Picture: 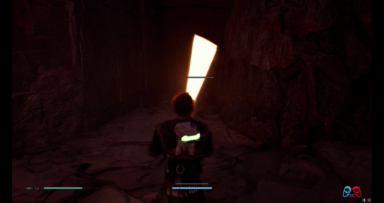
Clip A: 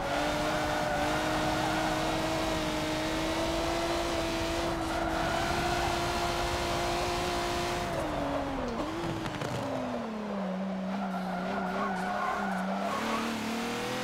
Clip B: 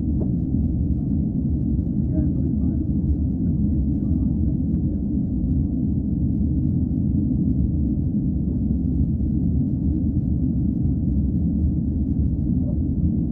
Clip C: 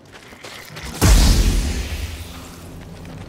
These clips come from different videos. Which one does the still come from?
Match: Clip C